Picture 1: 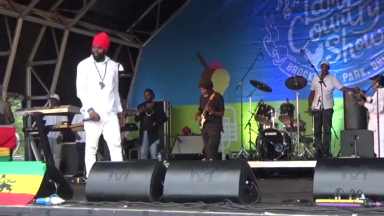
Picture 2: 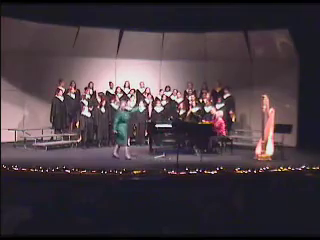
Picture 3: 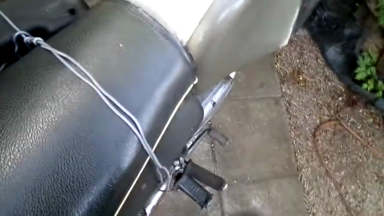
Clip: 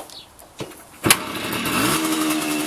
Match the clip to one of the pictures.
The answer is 3